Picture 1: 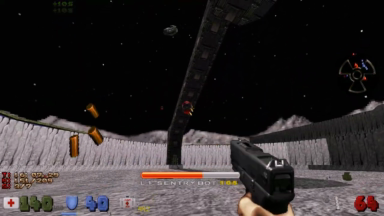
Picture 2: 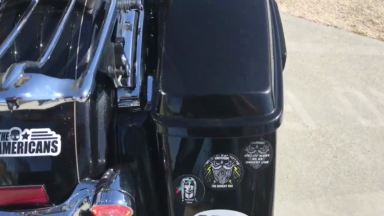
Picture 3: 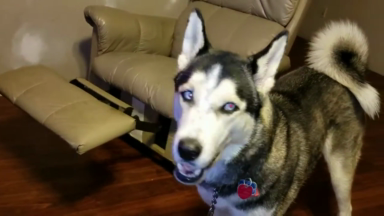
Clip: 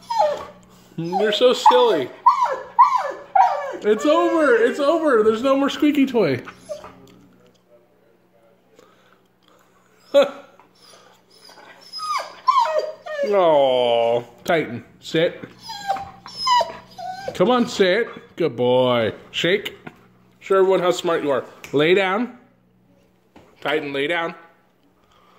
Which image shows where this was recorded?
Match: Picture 3